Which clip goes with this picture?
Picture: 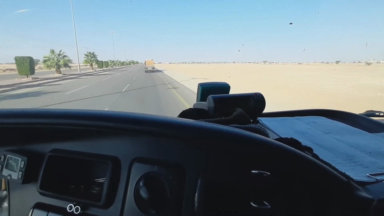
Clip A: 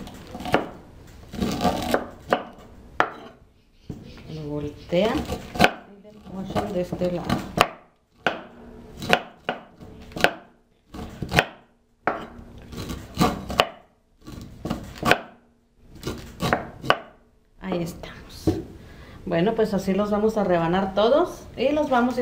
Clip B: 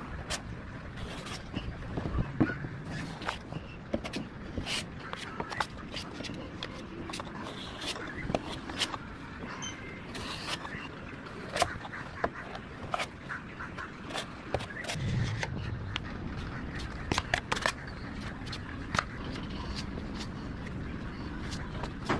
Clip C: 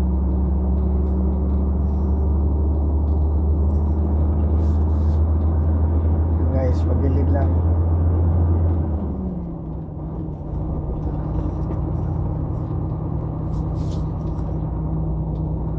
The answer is C